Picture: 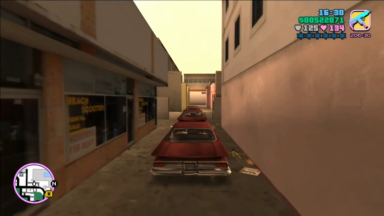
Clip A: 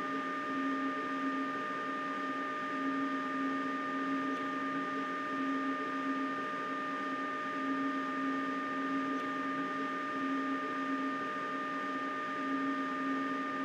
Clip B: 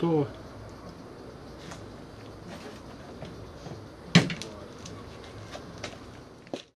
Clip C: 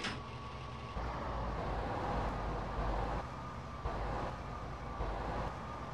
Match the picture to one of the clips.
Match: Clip C